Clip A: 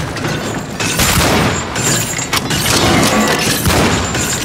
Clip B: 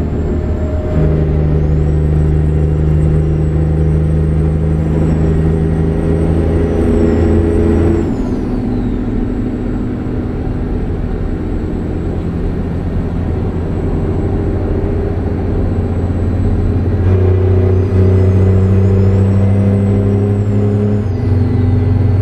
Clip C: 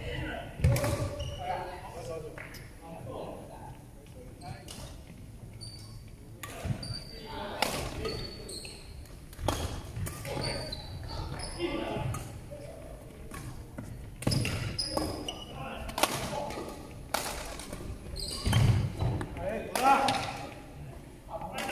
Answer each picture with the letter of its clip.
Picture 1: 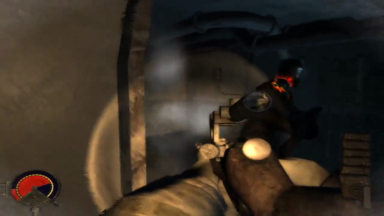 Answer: A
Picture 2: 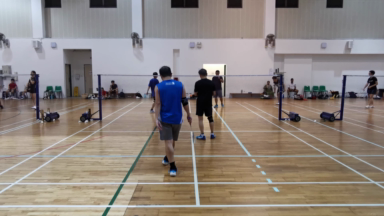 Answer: C